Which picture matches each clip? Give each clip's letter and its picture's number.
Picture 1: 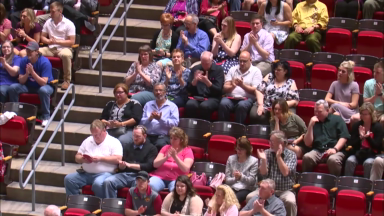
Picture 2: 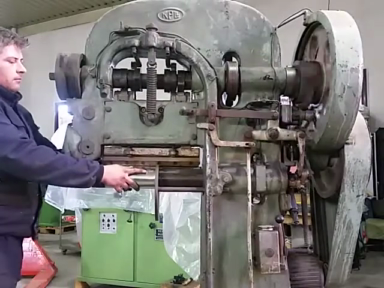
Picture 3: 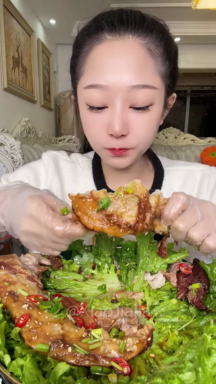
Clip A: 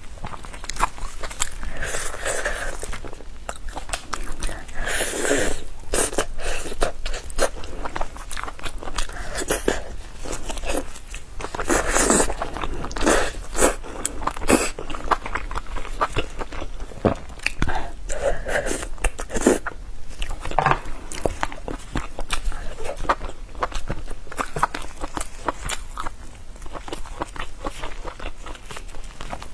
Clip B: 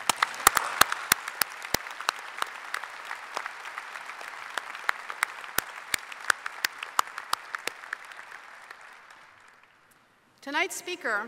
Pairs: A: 3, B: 1